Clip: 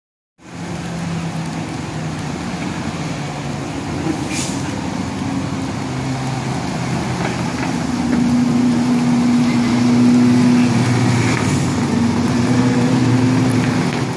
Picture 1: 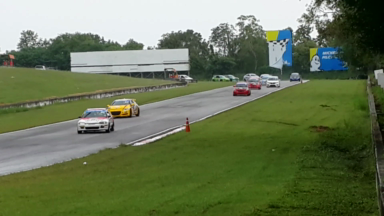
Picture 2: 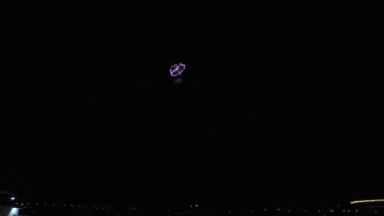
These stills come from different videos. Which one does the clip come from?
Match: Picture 1